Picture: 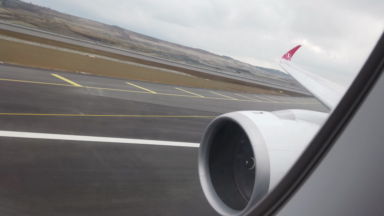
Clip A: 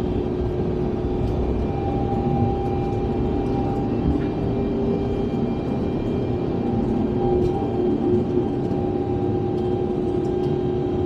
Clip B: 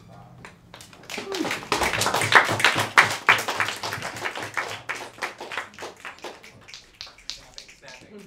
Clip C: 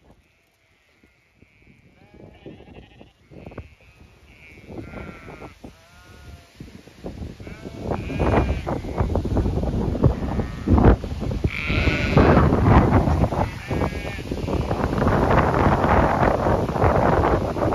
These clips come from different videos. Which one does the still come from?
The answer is A